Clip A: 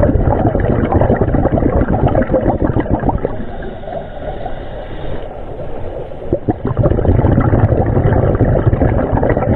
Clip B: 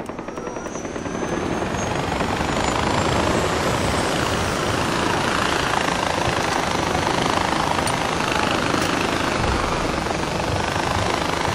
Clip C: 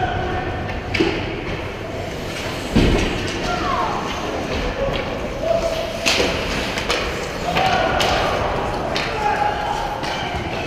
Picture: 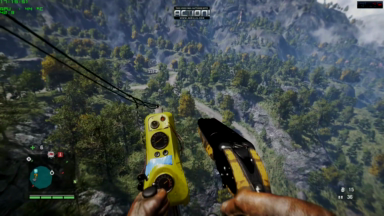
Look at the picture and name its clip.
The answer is B